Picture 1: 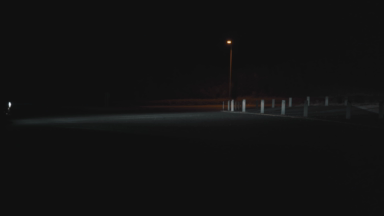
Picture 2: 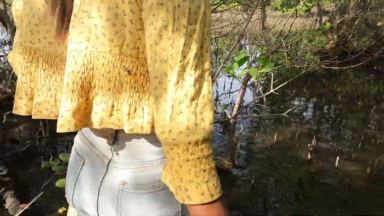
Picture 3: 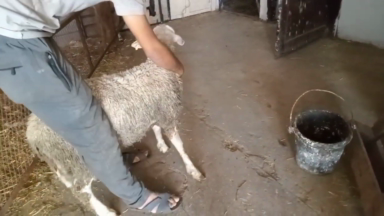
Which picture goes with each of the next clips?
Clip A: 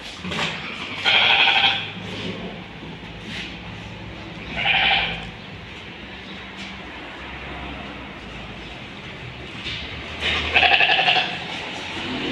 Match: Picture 3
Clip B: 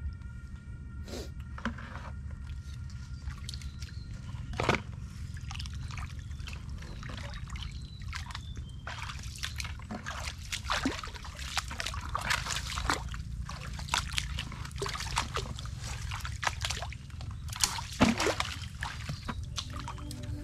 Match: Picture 2